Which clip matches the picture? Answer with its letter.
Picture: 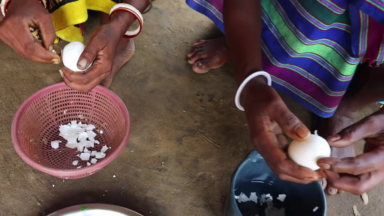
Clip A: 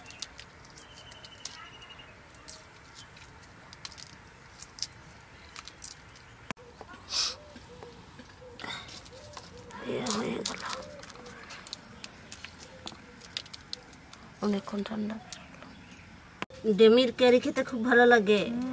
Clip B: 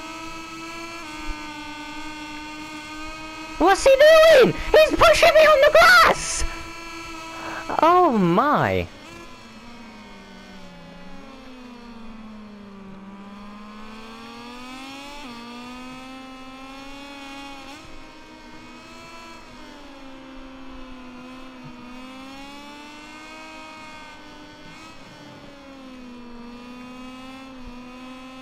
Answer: A